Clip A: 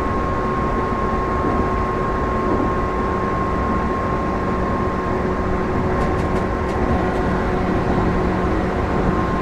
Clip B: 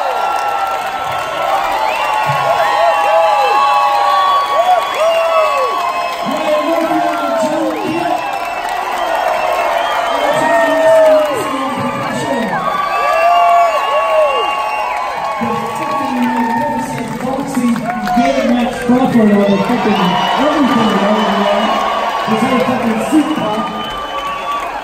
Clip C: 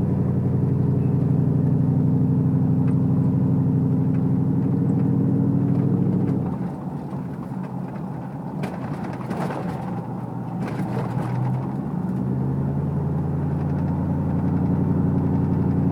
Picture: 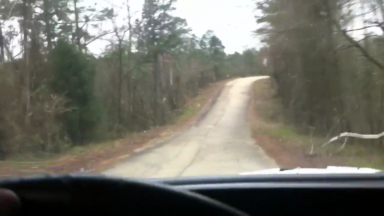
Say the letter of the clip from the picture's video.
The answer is C